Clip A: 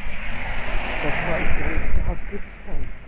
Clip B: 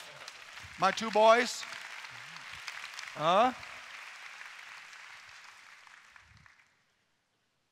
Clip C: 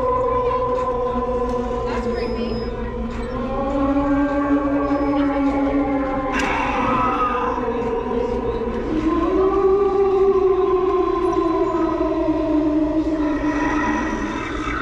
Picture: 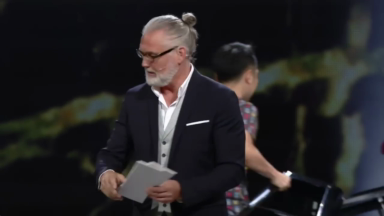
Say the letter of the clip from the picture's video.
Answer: B